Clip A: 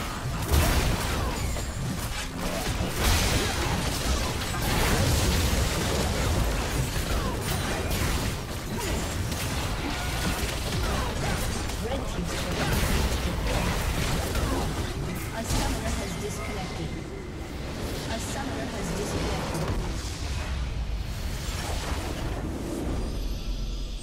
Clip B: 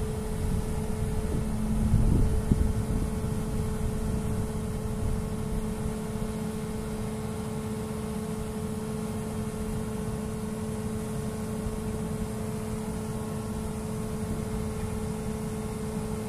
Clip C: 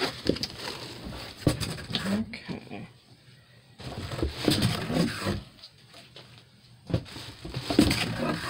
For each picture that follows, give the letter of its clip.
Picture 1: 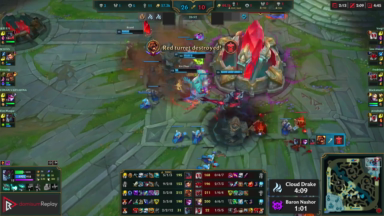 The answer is A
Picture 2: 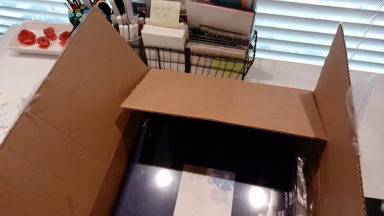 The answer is C